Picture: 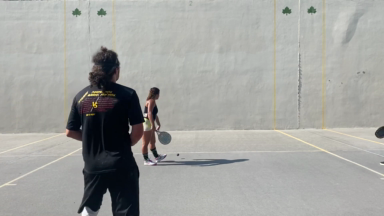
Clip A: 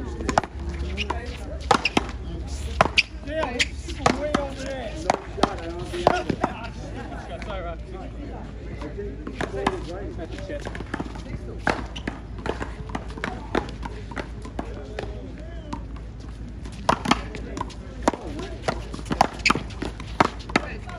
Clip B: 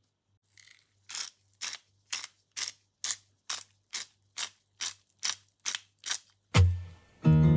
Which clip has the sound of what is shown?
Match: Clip A